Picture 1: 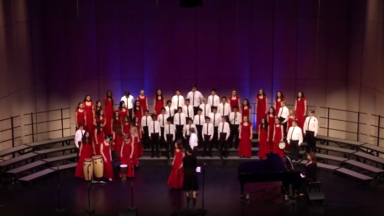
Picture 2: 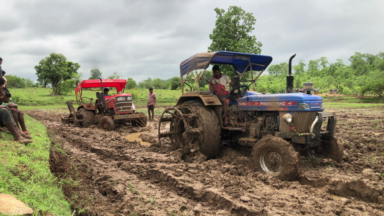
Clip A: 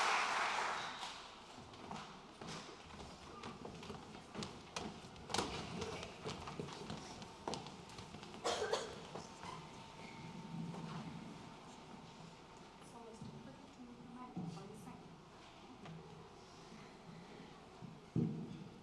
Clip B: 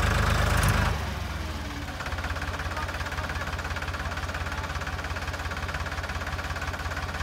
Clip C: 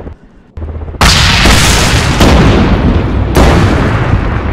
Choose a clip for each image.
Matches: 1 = A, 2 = B